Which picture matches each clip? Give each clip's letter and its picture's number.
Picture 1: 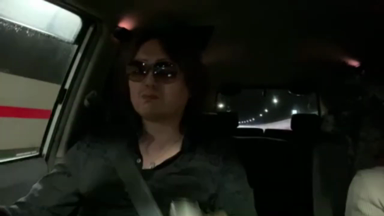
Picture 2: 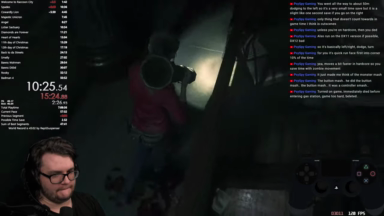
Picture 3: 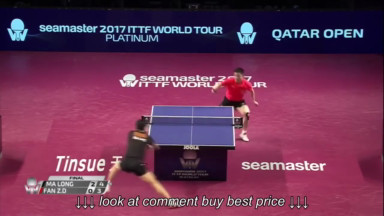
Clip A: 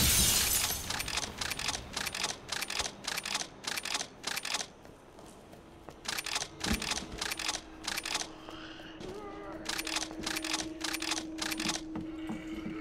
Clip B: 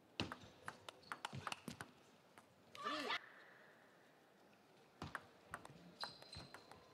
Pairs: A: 2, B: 3